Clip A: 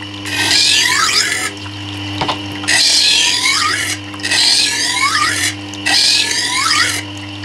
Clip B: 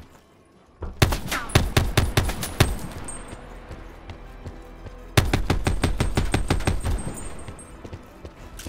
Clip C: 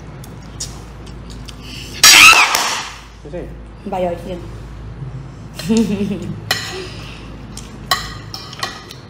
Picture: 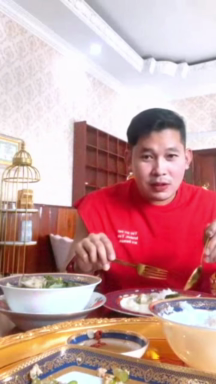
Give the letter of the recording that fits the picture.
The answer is C